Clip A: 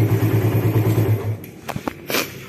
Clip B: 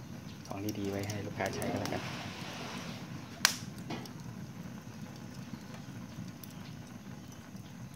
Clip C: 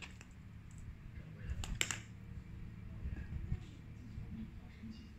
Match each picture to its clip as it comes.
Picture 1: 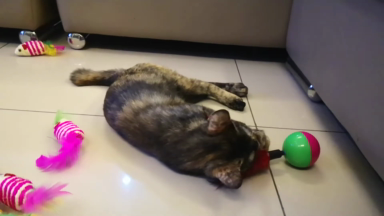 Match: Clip C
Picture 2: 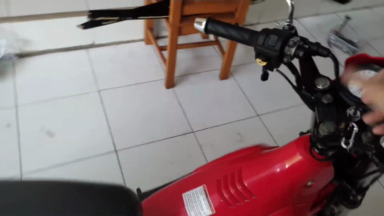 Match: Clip A